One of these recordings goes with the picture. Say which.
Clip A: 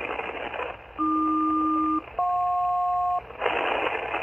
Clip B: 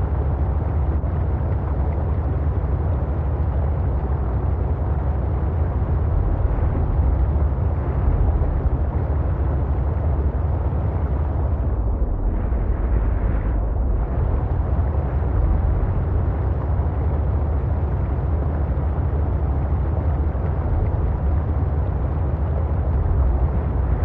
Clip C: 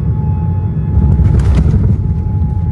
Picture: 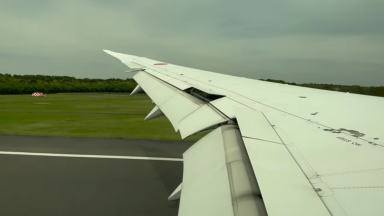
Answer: C